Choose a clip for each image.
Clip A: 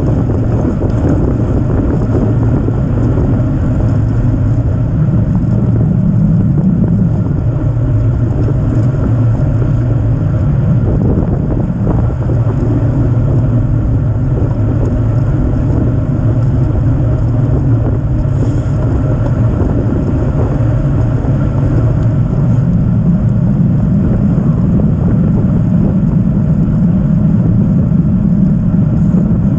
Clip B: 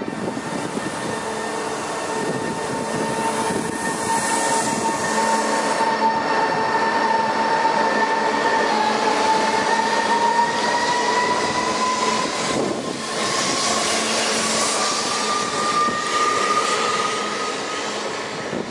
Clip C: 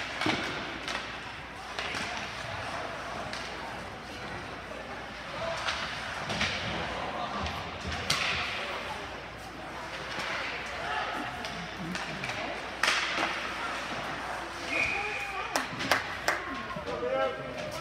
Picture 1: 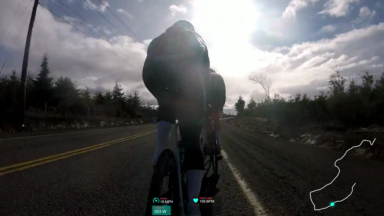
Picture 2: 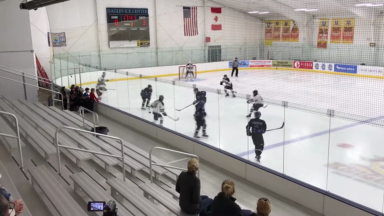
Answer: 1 A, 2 C